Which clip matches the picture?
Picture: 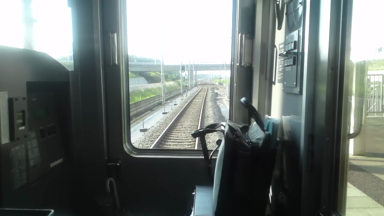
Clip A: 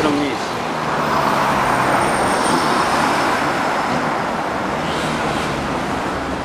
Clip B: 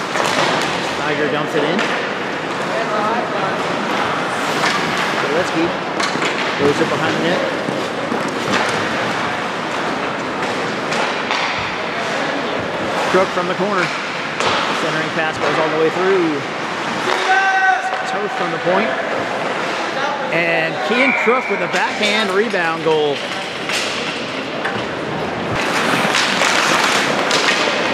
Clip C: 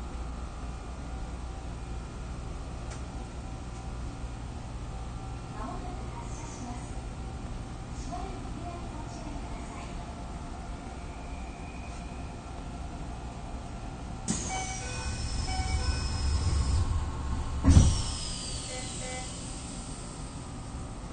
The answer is C